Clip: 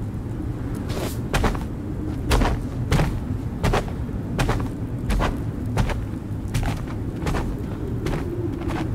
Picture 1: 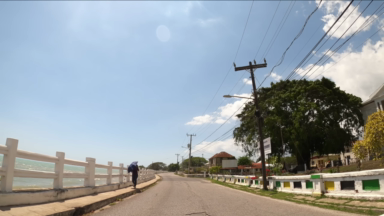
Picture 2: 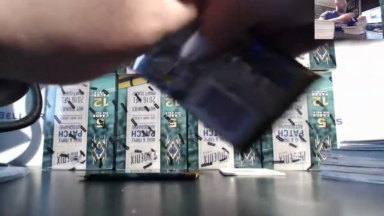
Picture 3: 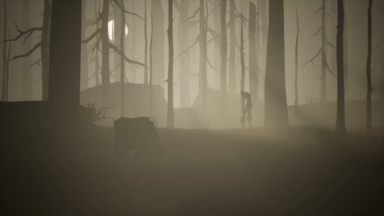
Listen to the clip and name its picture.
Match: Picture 3